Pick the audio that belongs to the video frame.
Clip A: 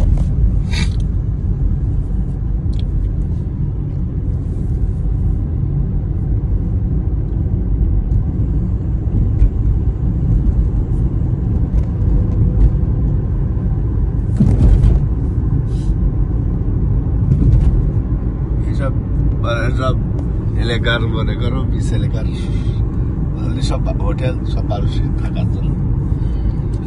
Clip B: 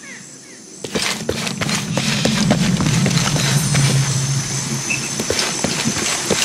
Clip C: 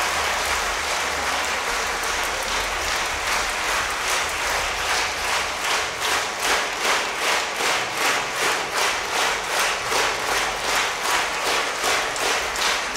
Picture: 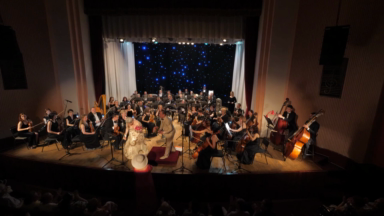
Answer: C